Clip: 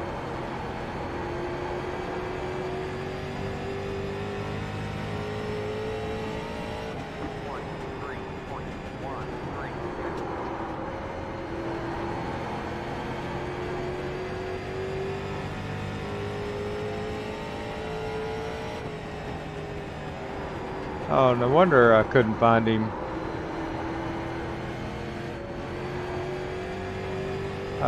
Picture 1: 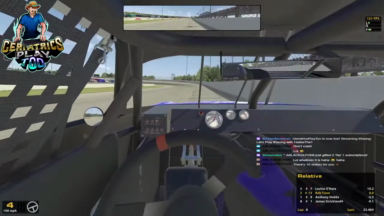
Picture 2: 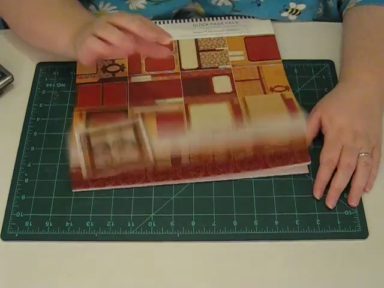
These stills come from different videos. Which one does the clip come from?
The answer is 1